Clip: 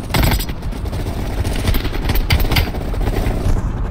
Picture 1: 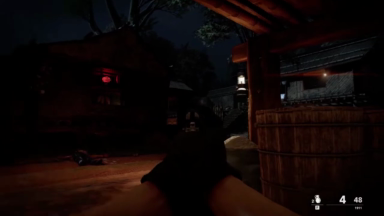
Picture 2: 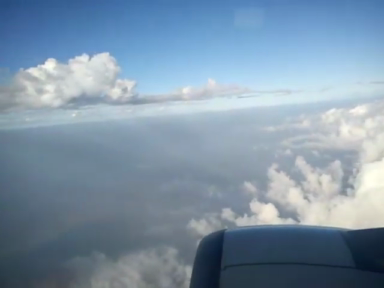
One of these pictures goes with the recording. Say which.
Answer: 1